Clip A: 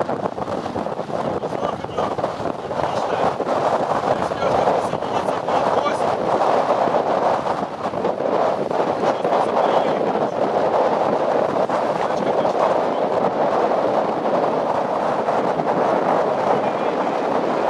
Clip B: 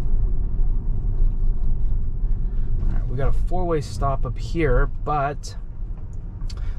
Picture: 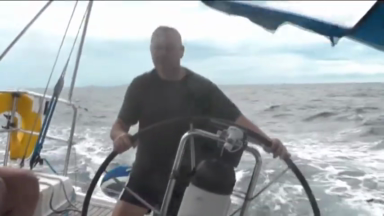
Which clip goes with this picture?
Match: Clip A